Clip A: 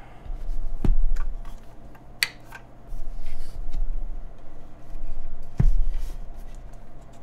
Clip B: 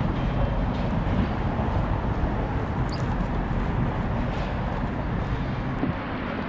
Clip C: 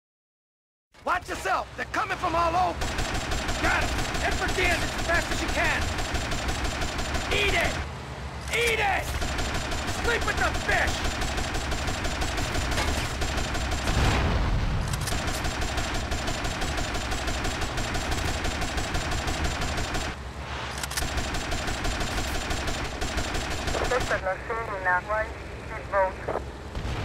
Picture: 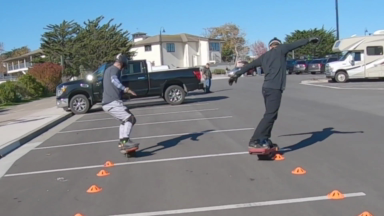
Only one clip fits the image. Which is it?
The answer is B